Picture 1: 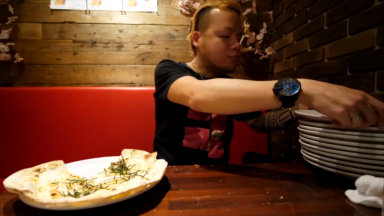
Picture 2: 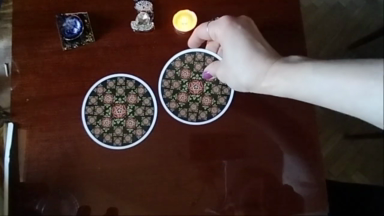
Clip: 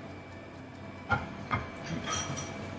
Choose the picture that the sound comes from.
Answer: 1